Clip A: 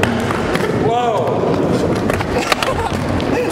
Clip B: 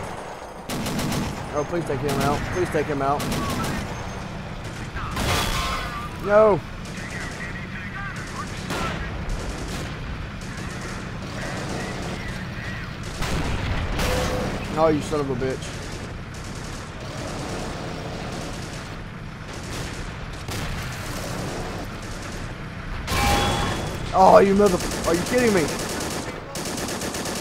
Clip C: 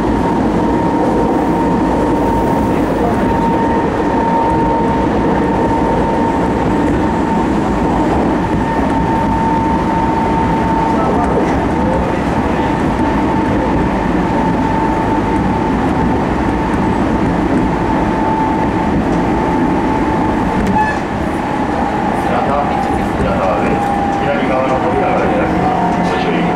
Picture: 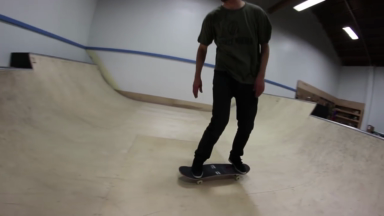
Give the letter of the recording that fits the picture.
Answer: A